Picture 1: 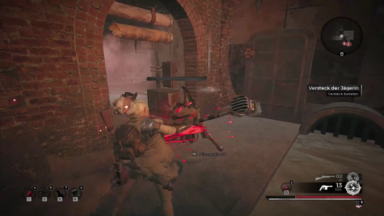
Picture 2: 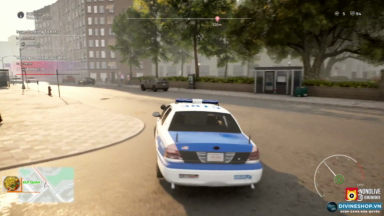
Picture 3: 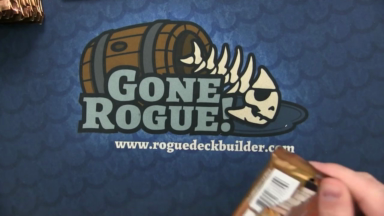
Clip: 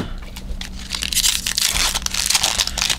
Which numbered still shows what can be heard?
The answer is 3